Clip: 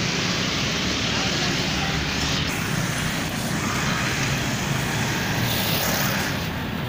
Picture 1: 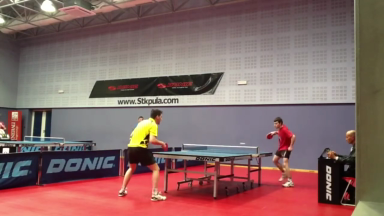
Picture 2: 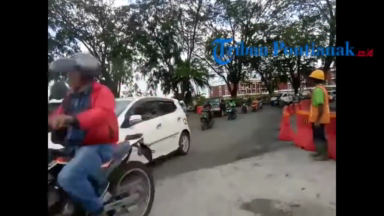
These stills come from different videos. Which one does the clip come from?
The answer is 2